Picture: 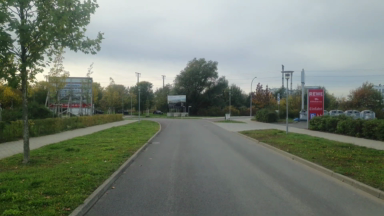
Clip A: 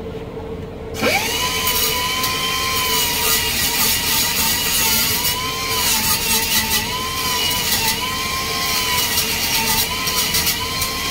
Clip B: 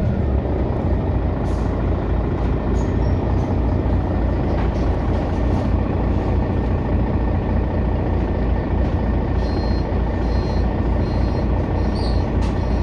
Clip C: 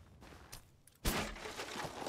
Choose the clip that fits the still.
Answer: B